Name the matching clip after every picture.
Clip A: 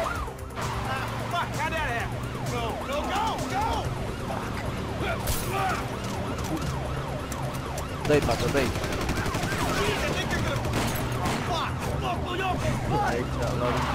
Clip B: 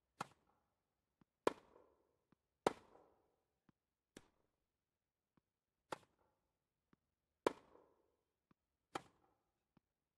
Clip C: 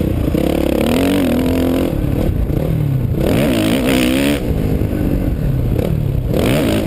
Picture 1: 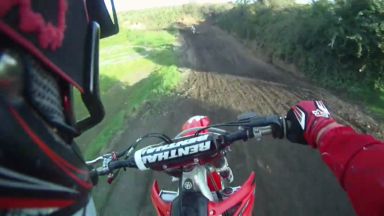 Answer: C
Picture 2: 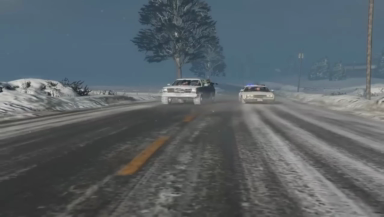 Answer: A